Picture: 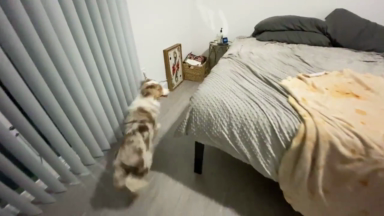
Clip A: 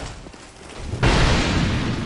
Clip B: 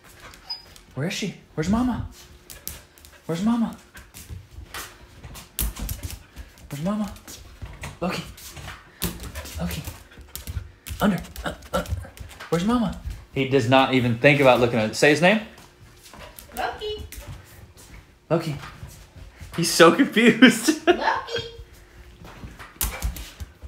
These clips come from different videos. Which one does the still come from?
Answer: B